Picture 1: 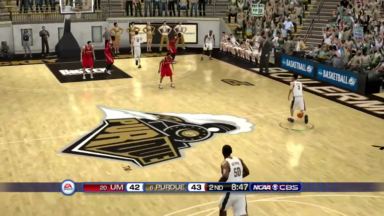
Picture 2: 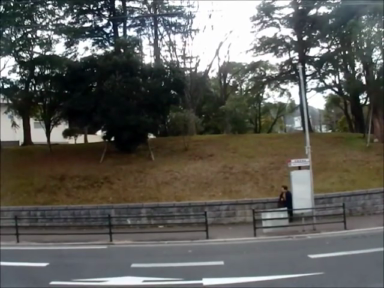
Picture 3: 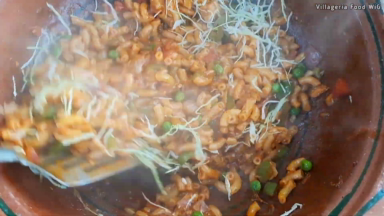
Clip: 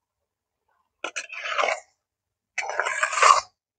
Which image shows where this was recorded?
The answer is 3